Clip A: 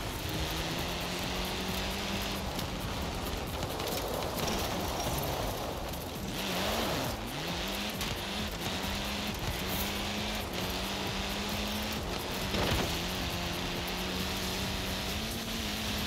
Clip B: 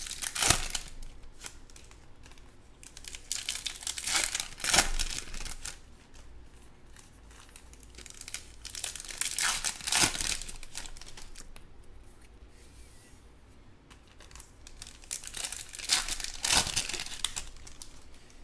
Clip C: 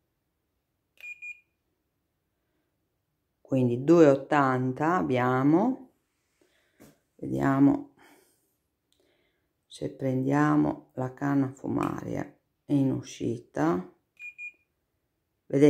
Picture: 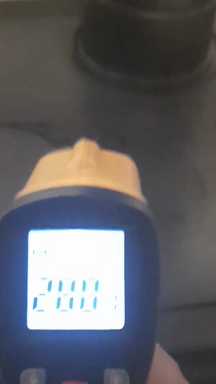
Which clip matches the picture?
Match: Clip C